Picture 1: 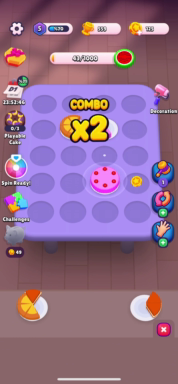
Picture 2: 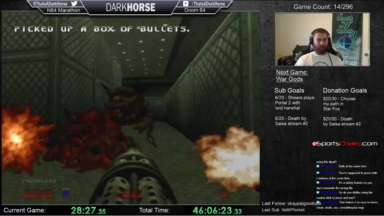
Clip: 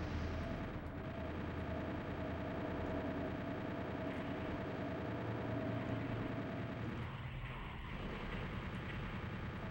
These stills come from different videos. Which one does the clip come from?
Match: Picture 2